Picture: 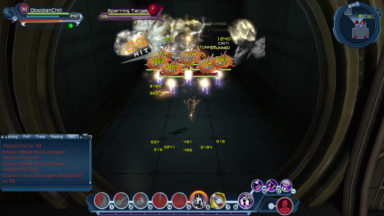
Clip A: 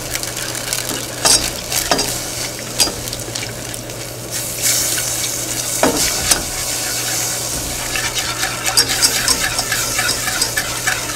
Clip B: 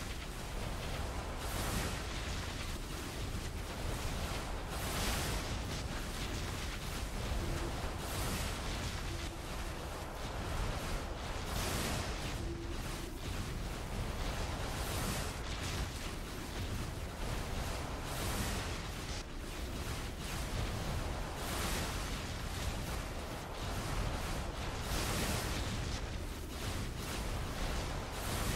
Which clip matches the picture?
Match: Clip B